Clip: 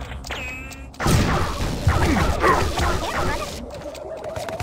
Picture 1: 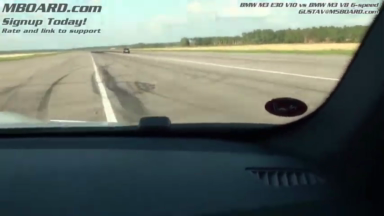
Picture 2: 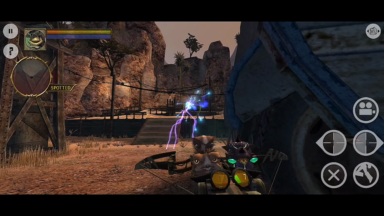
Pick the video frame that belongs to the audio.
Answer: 2